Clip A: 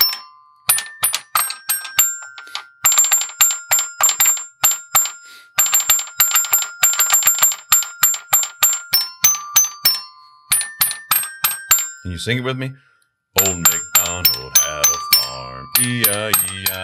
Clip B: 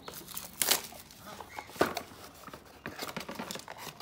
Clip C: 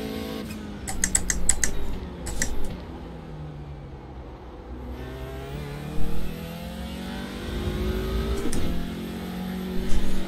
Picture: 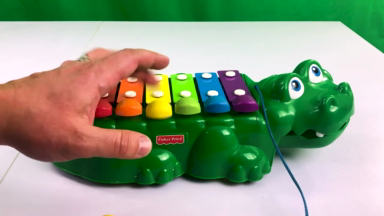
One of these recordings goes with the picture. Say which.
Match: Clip A